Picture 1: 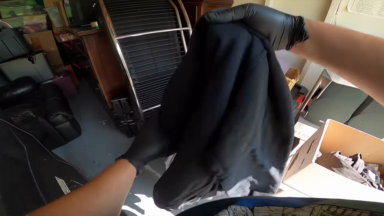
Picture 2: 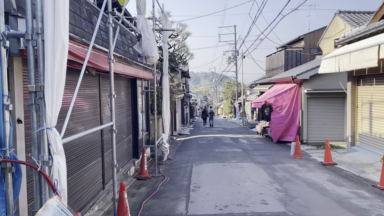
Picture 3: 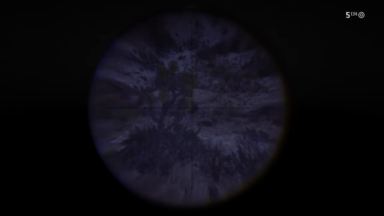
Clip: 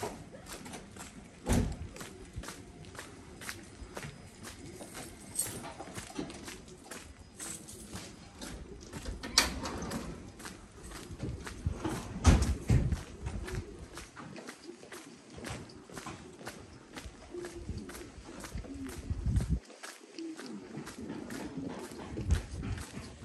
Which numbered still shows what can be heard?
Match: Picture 2